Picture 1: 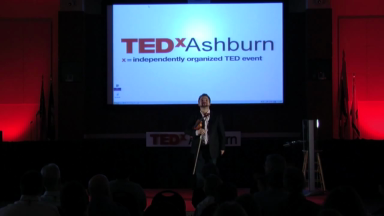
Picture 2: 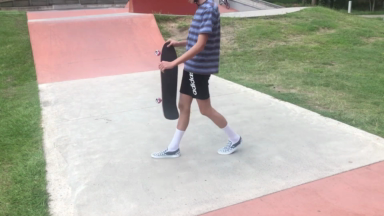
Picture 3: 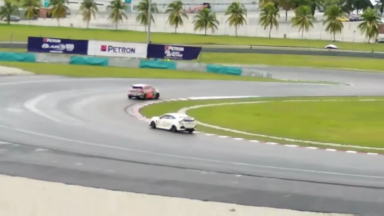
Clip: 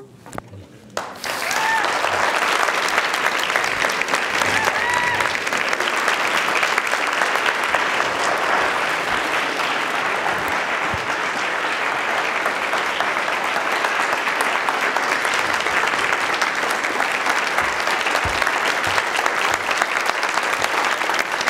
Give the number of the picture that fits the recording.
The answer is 1